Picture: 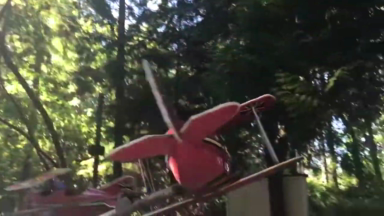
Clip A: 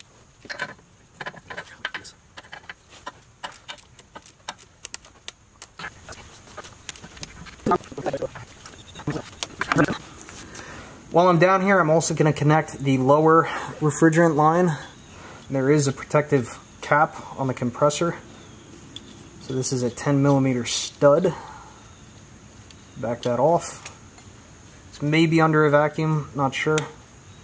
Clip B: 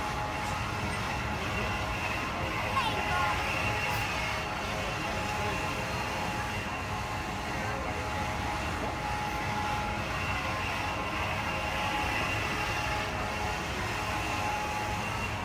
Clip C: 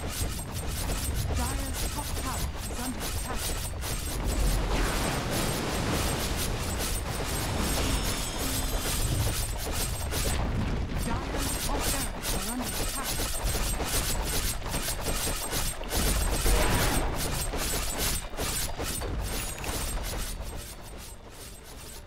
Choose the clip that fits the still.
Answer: B